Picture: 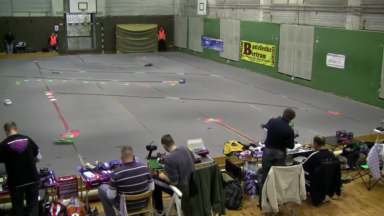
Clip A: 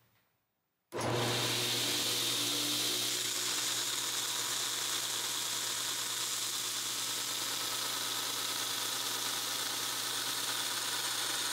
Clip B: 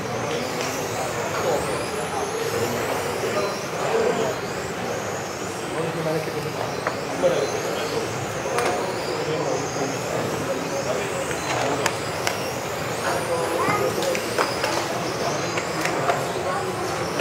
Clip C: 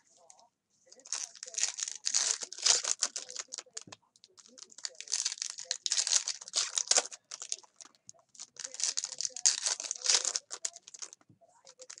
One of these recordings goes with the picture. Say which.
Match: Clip B